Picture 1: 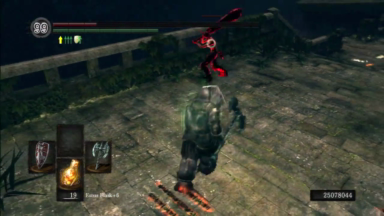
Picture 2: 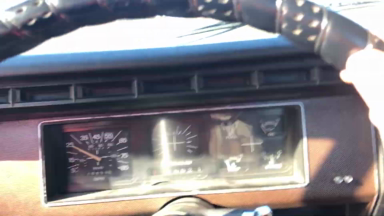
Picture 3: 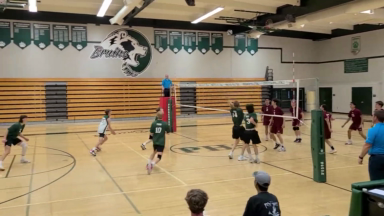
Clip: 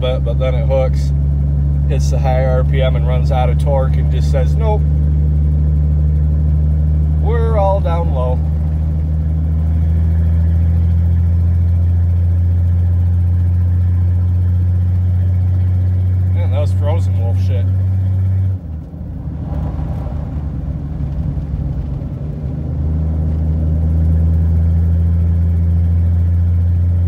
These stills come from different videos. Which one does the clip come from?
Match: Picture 2